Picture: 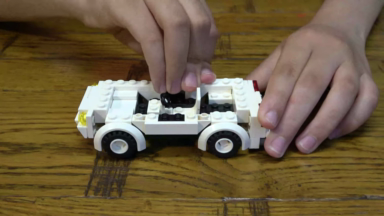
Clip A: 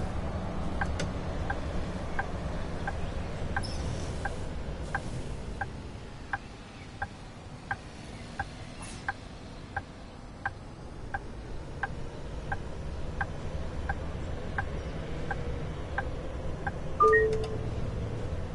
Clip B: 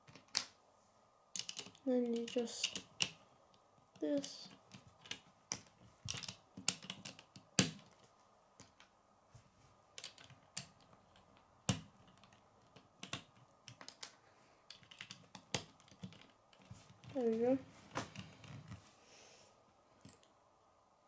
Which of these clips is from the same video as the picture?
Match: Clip B